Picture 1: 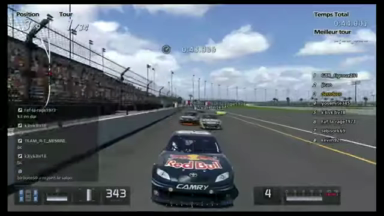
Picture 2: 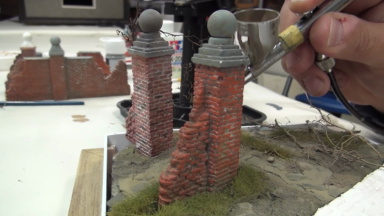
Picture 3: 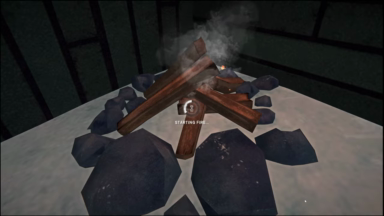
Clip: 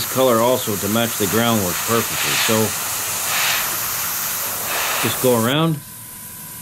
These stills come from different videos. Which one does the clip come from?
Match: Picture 2